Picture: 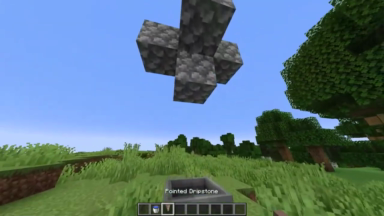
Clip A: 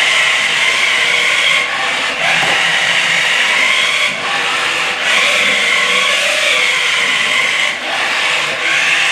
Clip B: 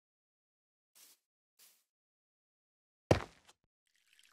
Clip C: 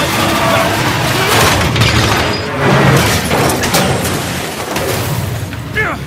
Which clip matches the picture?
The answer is B